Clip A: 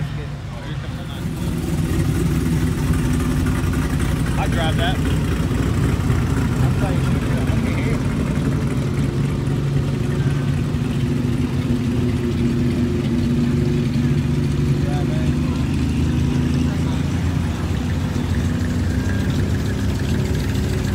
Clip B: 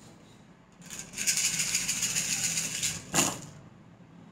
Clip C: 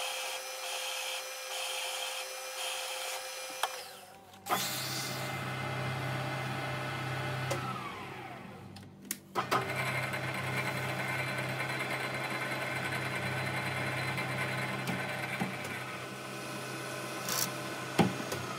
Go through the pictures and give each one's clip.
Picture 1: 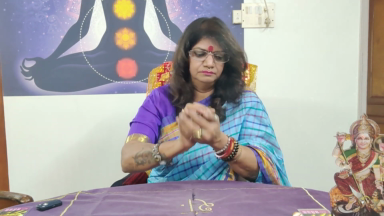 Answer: B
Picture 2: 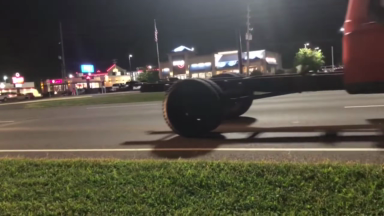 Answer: A